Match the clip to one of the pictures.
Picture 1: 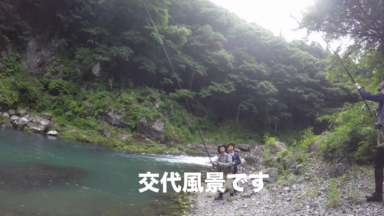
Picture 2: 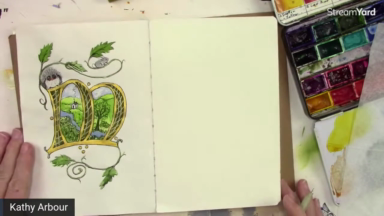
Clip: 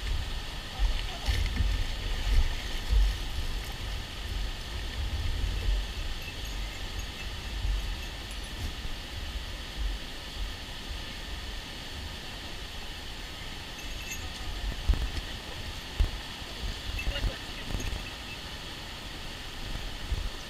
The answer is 1